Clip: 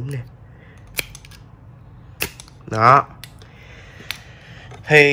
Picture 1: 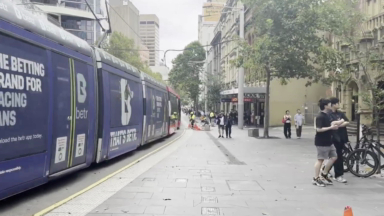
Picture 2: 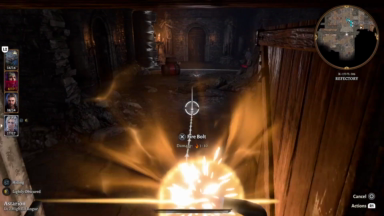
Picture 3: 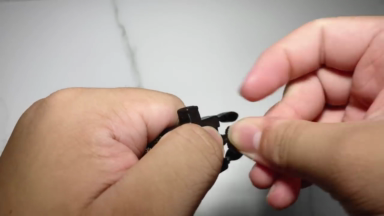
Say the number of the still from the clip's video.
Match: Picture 3